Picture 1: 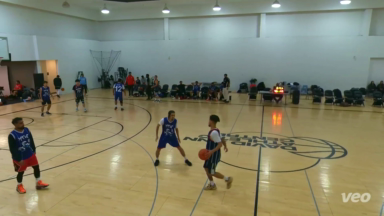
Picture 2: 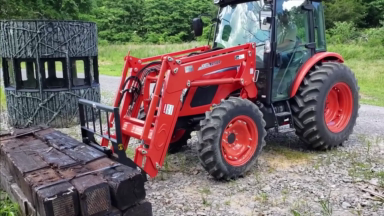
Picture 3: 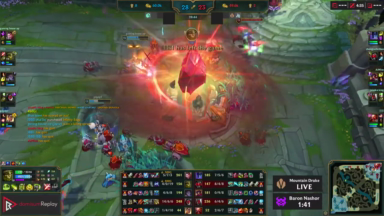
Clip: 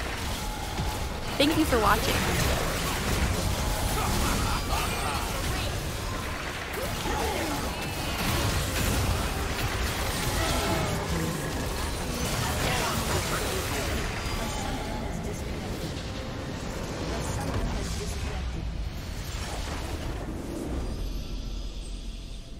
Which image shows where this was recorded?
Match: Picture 3